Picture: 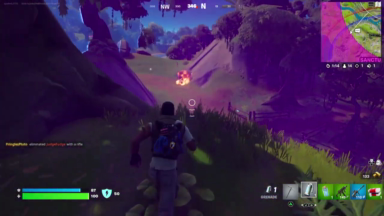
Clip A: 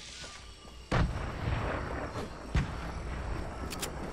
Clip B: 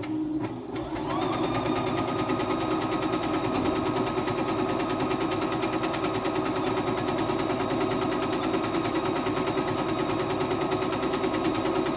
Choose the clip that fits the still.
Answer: A